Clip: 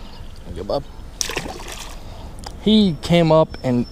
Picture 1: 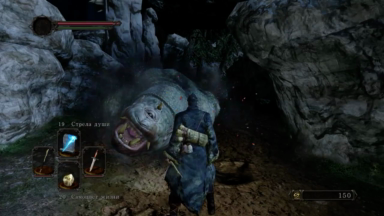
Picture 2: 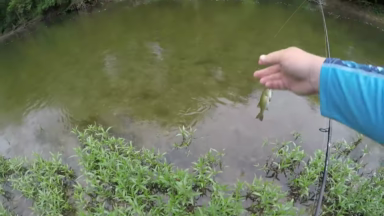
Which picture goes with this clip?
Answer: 2